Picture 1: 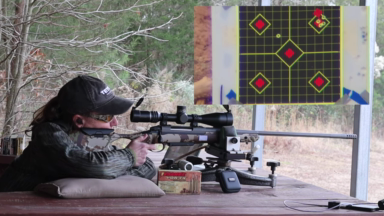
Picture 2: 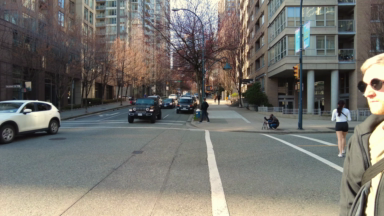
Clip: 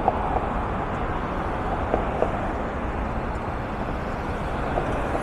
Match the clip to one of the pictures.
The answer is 2